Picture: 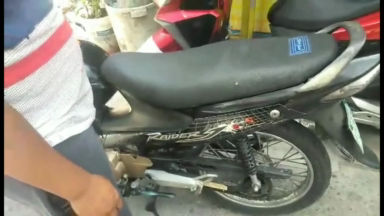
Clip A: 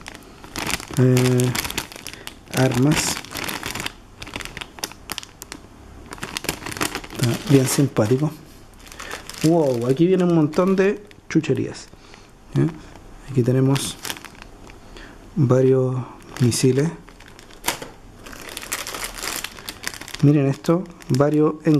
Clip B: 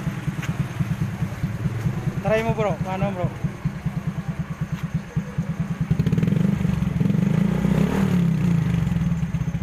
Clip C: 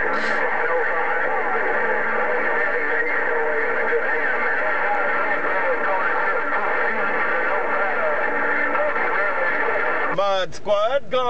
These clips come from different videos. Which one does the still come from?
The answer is B